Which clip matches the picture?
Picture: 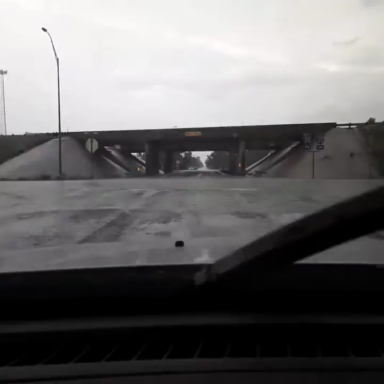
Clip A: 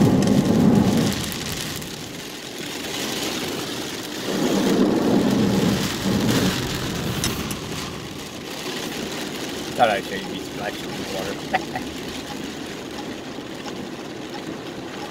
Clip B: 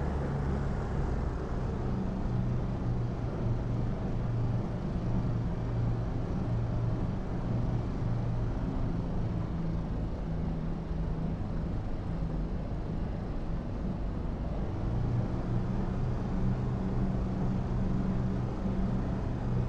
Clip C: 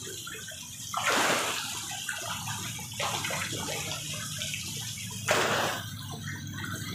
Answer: A